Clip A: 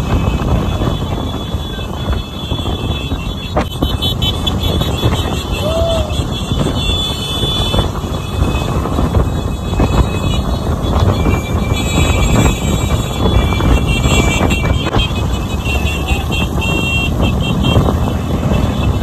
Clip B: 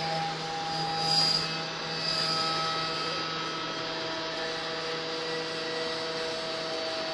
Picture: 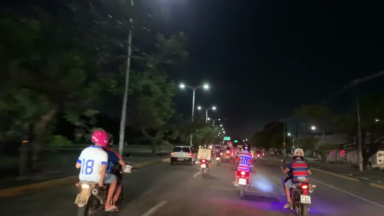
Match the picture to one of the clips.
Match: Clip A